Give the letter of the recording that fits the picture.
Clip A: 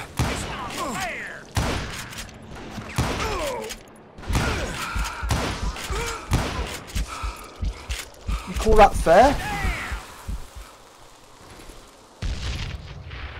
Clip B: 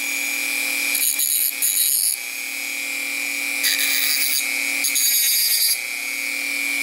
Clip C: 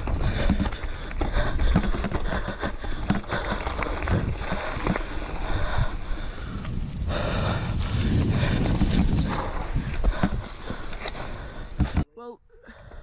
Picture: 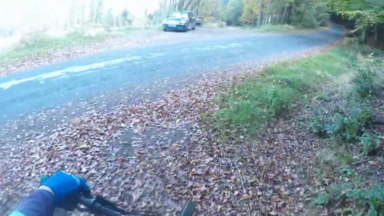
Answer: C